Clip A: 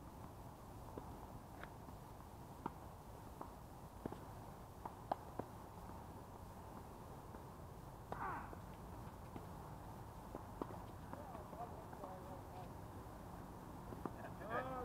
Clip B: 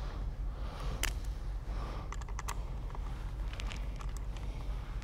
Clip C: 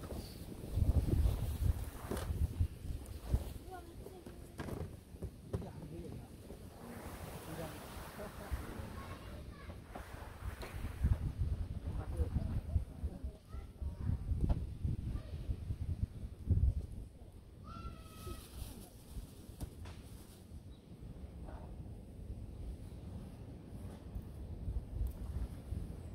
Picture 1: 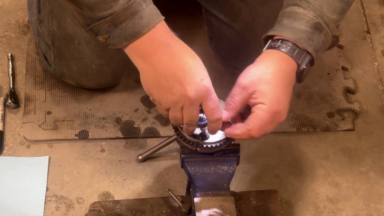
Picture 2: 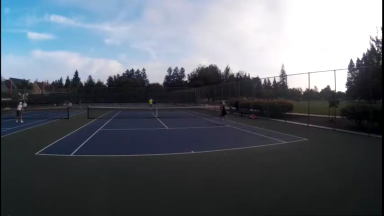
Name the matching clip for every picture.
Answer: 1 B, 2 A